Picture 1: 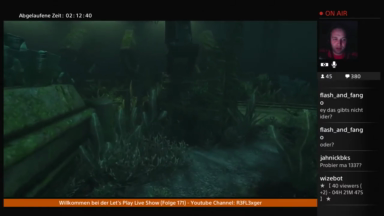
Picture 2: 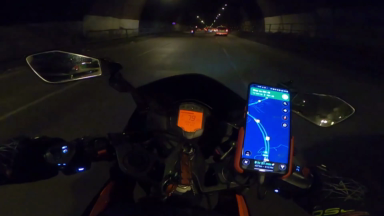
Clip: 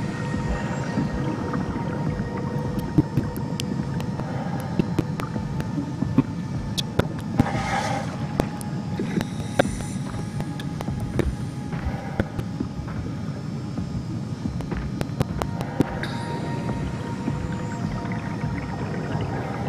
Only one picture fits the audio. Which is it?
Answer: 1